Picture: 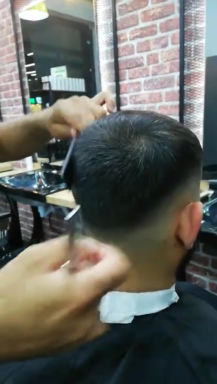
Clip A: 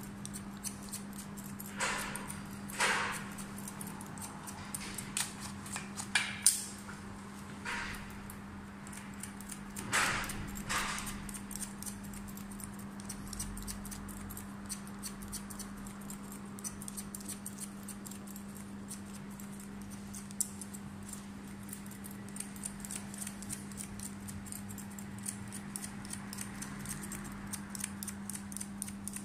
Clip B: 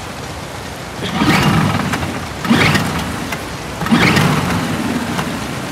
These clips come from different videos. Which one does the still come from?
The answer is A